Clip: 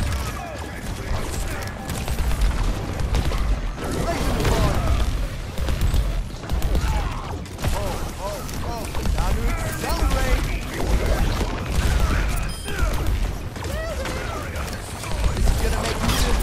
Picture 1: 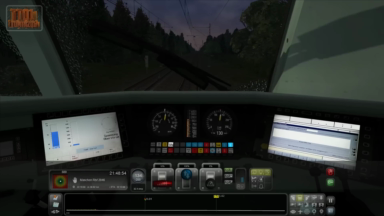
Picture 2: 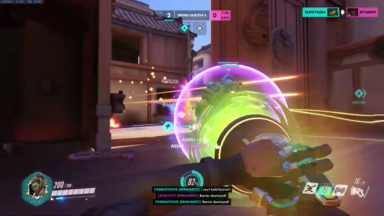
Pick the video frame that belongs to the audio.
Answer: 2